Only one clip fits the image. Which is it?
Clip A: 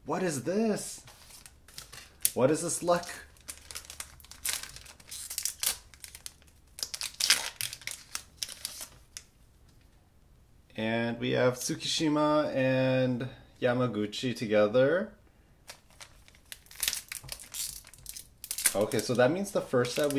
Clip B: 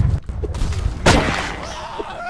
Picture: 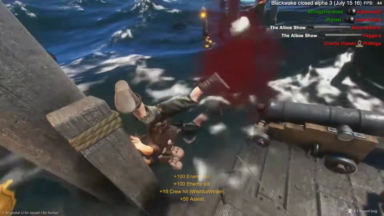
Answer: B